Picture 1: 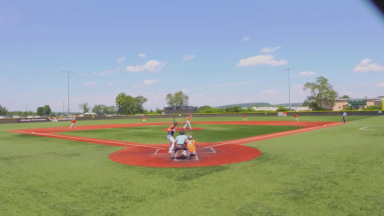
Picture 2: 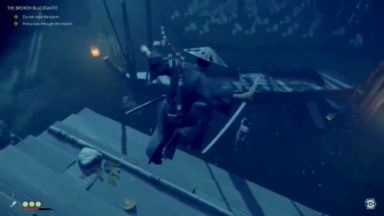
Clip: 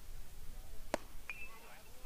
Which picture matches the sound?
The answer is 1